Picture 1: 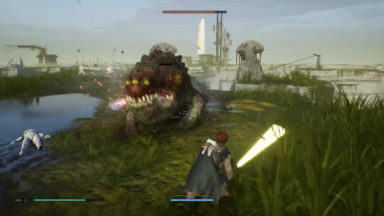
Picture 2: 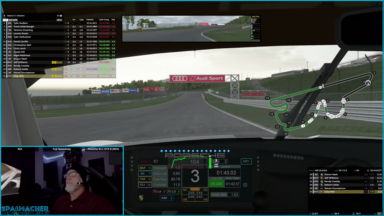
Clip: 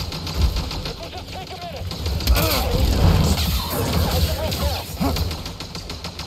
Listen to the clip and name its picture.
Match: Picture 1